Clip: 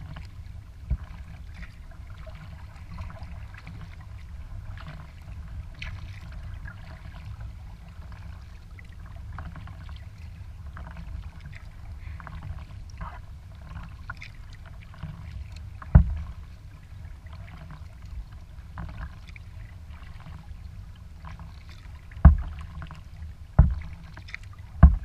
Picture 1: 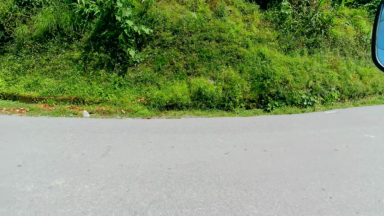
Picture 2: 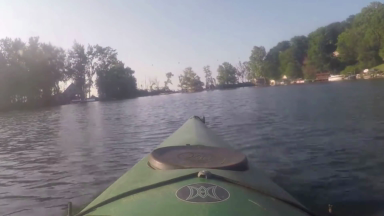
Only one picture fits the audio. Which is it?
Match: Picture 2